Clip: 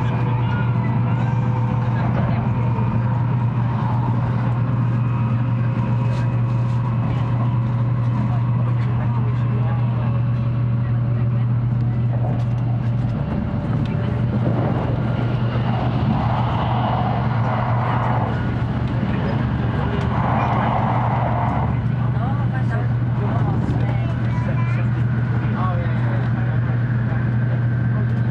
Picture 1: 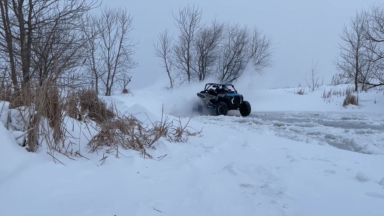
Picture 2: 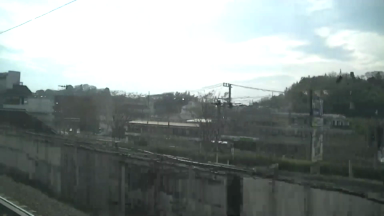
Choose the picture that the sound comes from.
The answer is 2